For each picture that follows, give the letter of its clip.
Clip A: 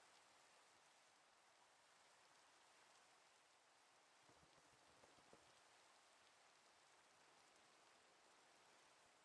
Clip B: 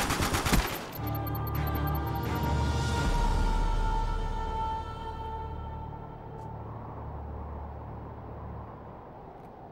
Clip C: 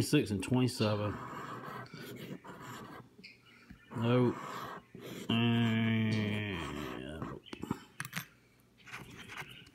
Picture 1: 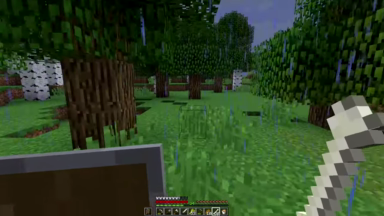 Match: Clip A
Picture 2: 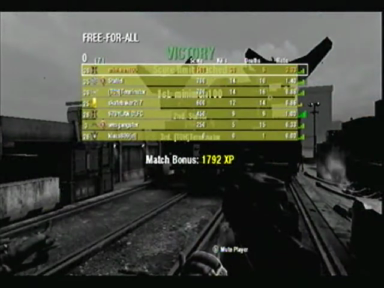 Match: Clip B